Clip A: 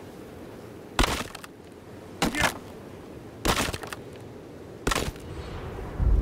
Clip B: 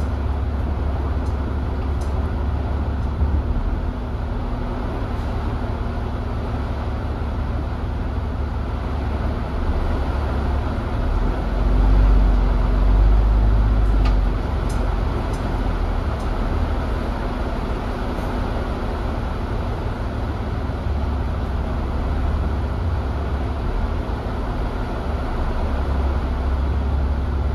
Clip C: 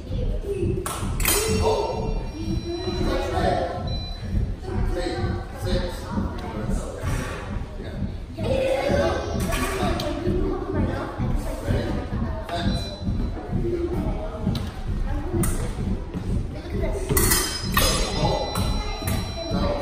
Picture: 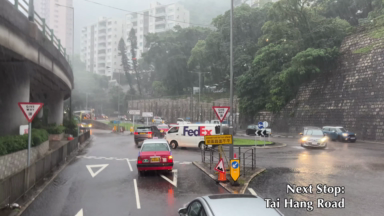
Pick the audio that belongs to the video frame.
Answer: B